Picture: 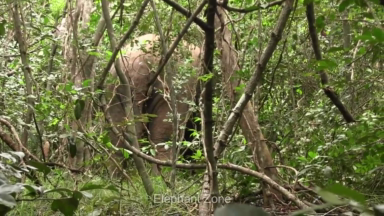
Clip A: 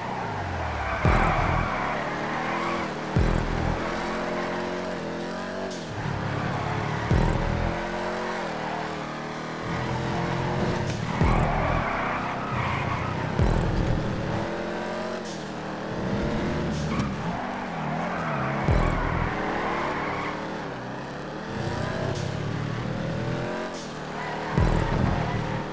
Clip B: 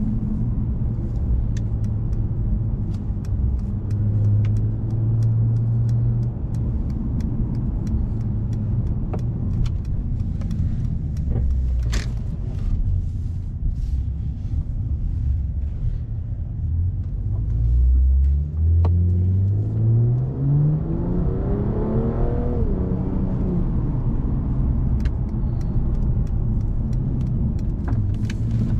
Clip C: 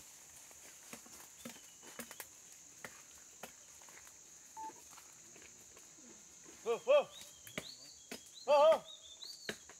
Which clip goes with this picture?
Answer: C